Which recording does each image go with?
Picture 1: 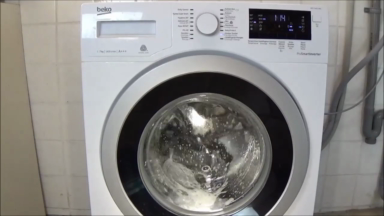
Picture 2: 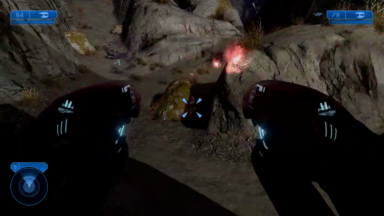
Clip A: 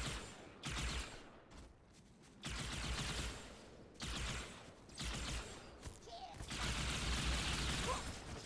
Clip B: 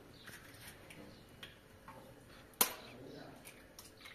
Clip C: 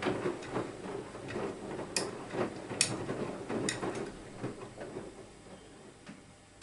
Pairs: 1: C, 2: A